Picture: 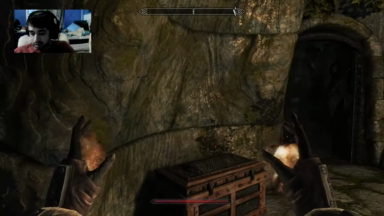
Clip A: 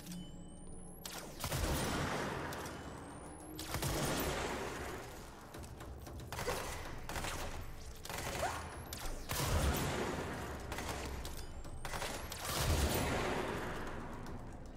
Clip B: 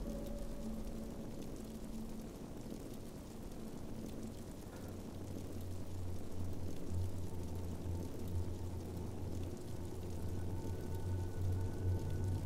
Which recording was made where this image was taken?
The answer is B